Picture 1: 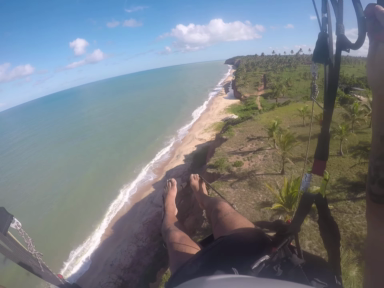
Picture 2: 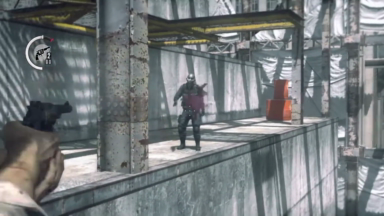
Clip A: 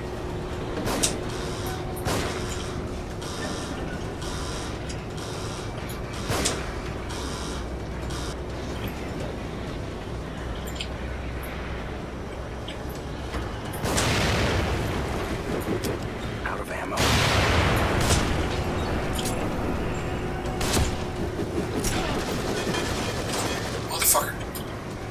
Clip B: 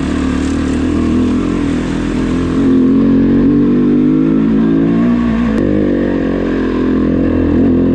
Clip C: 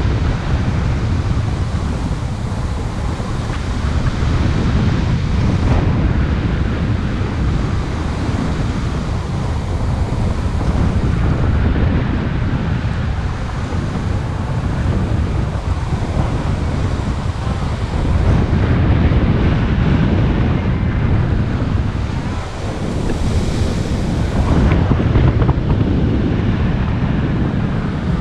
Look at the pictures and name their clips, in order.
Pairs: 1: C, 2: A